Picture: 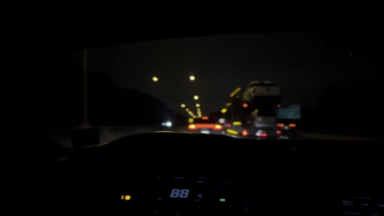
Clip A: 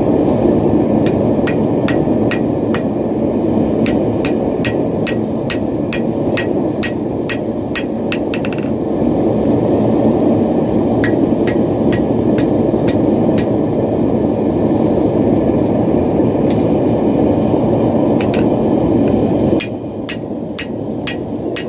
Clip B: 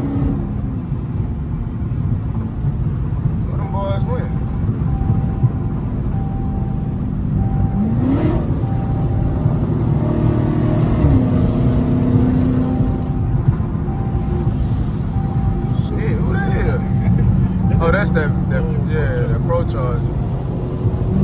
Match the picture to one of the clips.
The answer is B